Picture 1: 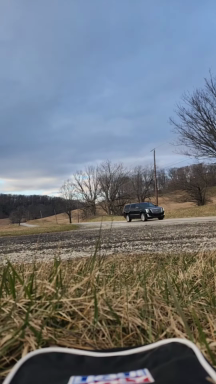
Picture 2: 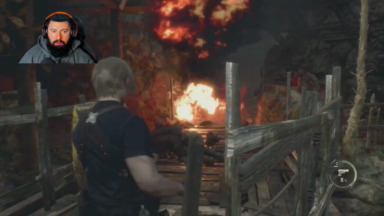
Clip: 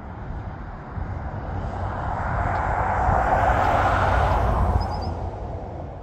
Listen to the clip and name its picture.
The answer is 1